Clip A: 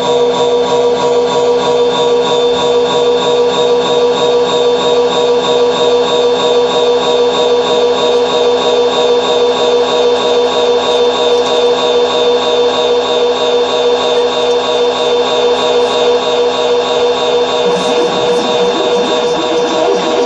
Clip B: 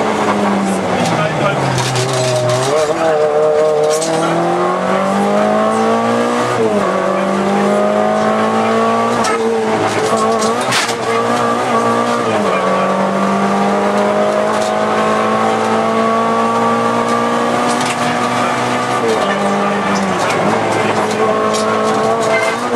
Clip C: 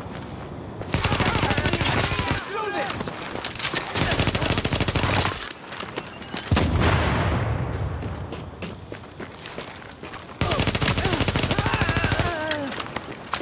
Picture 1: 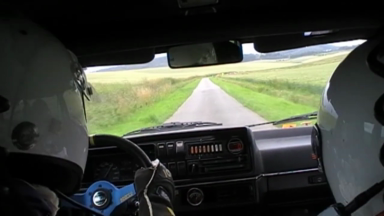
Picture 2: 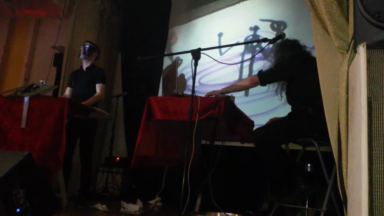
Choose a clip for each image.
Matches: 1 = B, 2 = A